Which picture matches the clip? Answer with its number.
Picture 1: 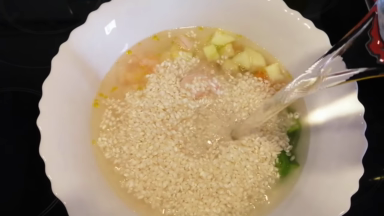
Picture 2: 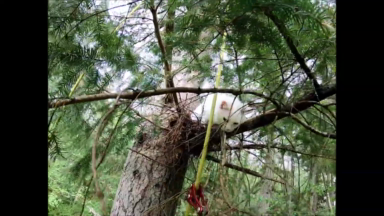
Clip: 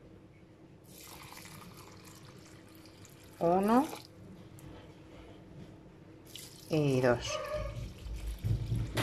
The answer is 1